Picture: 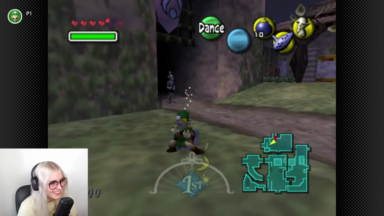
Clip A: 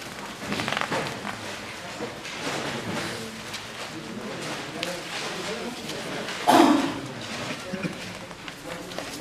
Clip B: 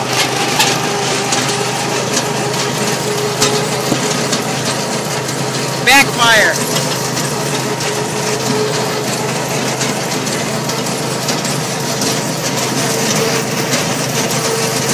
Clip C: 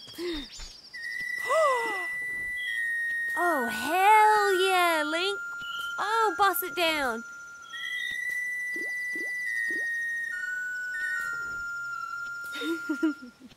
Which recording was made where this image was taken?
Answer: C